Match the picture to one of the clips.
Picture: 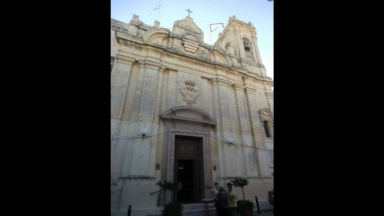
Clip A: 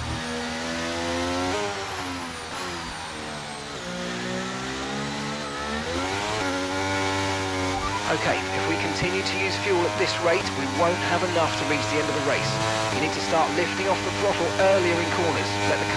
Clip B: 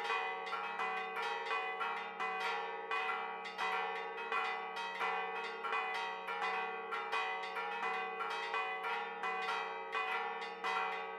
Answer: B